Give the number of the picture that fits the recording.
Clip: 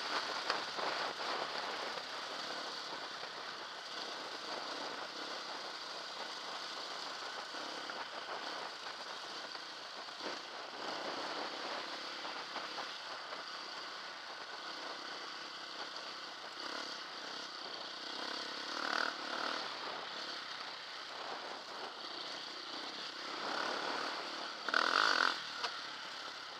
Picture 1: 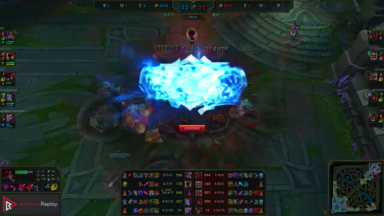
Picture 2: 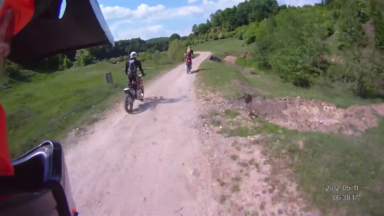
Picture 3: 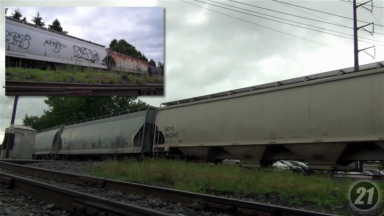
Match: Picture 2